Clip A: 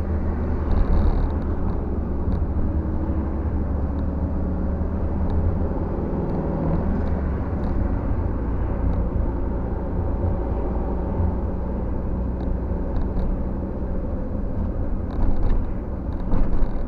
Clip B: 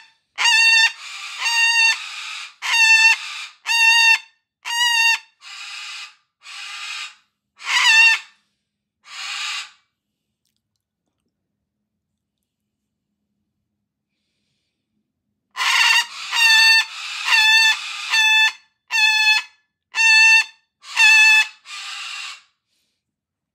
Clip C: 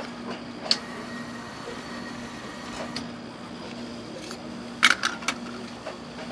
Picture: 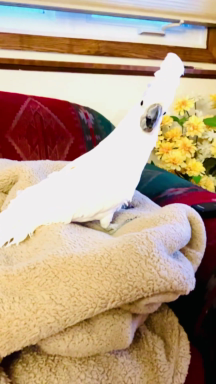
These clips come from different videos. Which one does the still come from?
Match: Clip B